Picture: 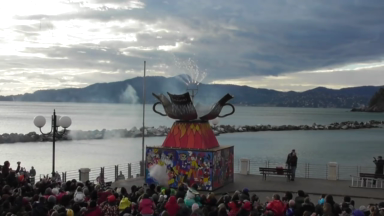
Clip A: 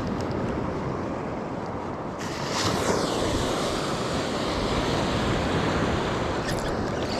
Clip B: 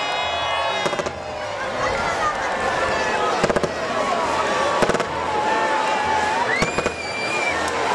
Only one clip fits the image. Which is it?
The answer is B